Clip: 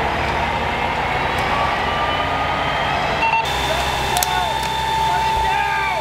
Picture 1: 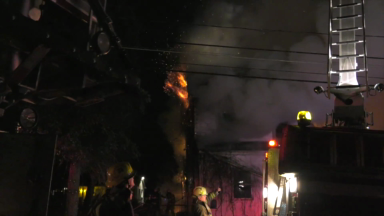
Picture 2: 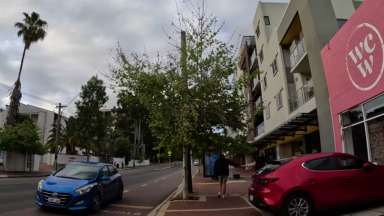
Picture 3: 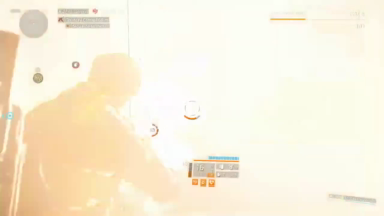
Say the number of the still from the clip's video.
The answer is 1